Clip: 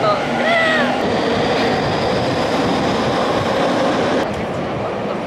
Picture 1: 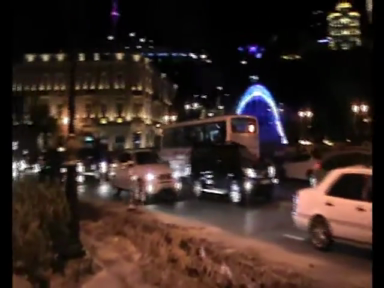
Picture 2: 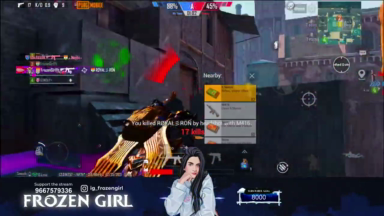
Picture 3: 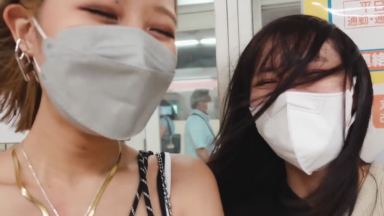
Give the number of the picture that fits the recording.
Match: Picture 3